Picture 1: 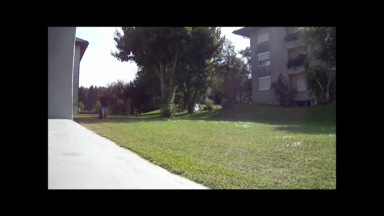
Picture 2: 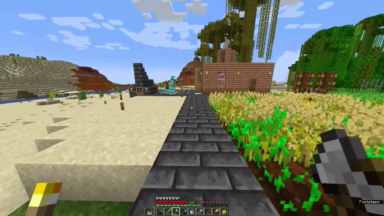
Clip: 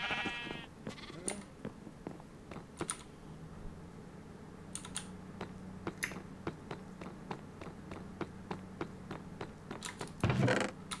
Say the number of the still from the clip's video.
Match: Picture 2